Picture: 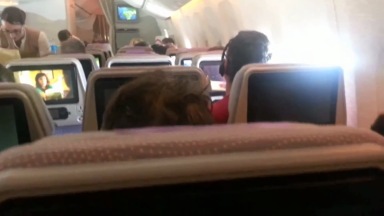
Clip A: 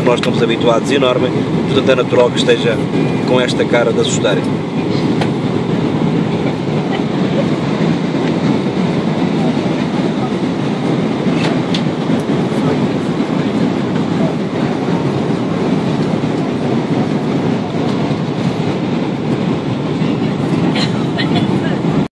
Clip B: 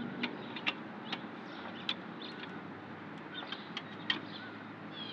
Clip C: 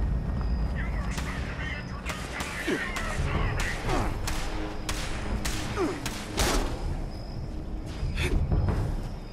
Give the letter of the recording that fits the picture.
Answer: A